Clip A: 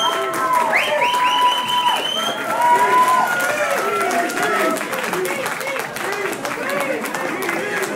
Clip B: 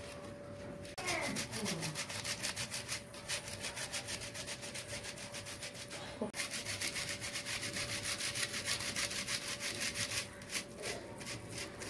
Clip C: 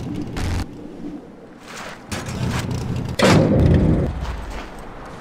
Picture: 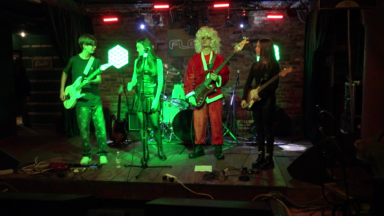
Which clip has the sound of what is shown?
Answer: A